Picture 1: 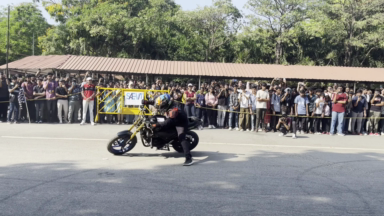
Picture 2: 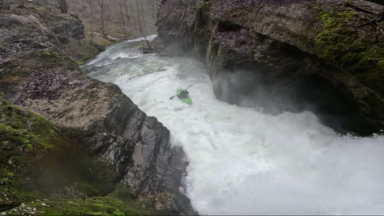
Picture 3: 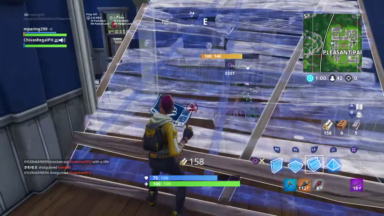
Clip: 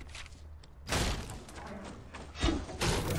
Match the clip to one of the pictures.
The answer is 3